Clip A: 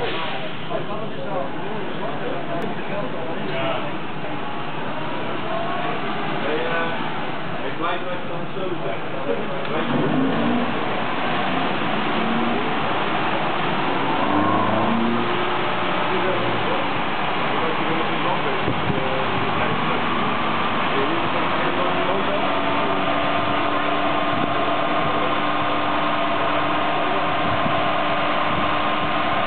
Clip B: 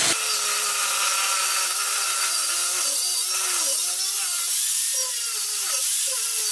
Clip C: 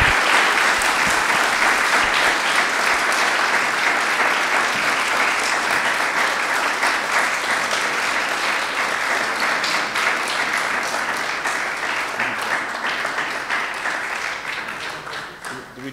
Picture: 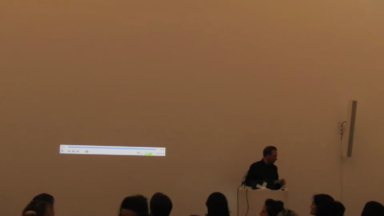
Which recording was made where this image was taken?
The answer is C